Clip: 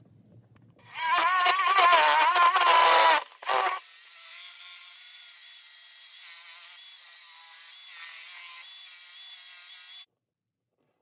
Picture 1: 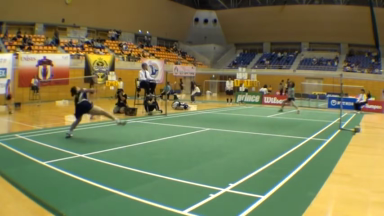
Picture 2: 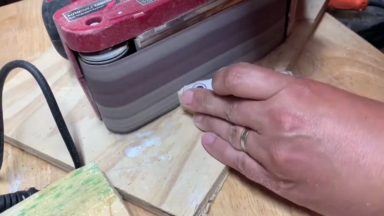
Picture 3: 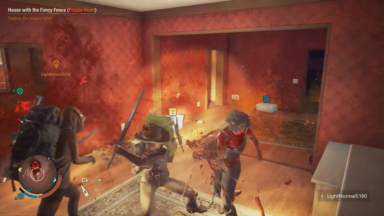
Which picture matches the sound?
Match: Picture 2